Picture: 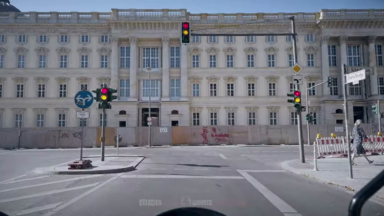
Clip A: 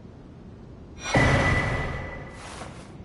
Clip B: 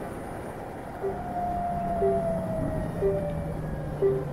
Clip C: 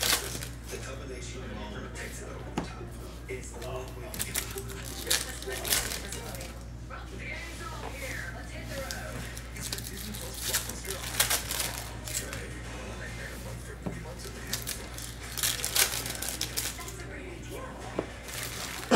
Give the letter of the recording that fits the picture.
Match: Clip B